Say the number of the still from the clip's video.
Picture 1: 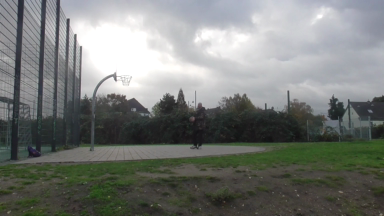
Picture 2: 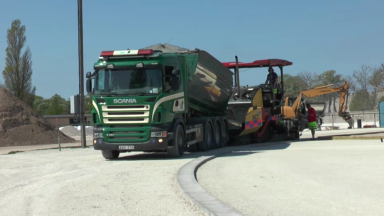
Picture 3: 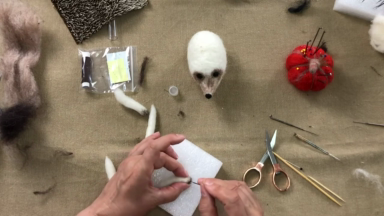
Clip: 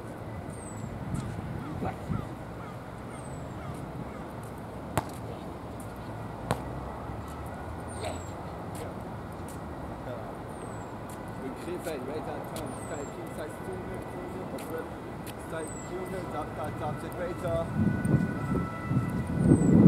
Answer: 1